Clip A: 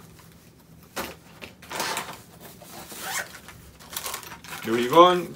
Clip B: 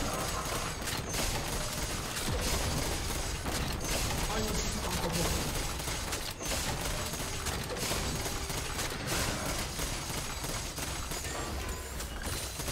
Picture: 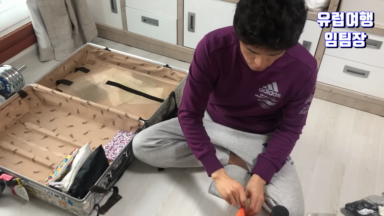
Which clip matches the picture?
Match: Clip A